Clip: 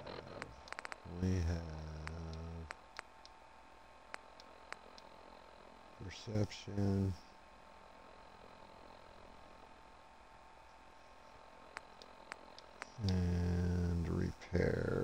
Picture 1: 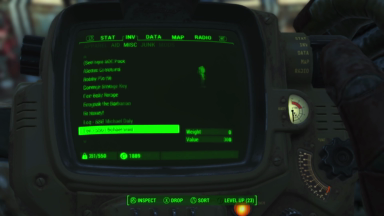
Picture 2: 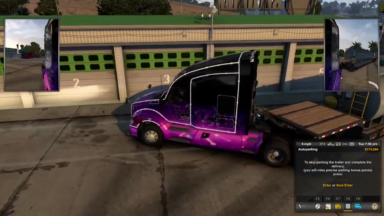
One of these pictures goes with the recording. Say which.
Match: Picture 1